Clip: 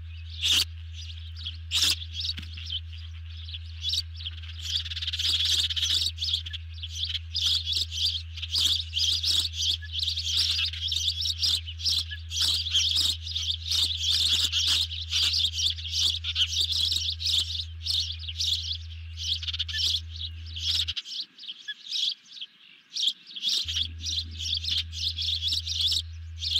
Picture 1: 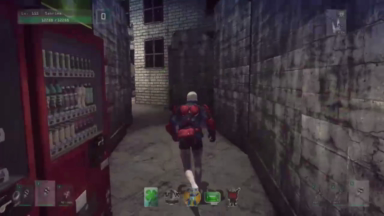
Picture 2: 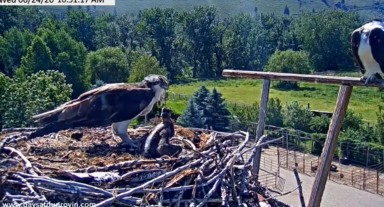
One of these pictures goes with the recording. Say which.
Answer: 2